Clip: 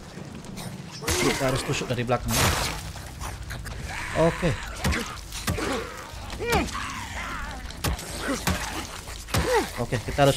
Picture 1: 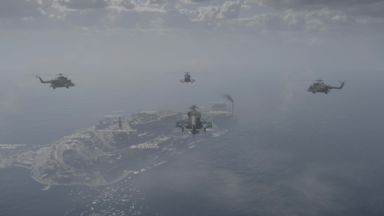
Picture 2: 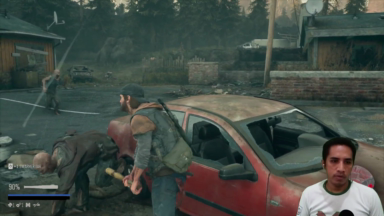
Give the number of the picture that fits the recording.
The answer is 2